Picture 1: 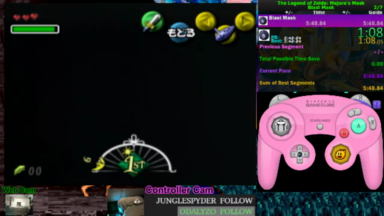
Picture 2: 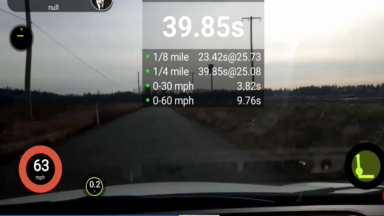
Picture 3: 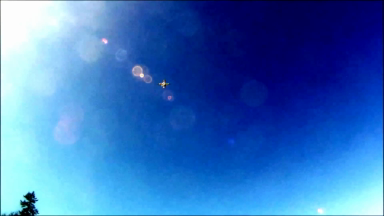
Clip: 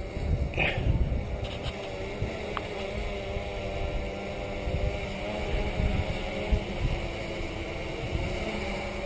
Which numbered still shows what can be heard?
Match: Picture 3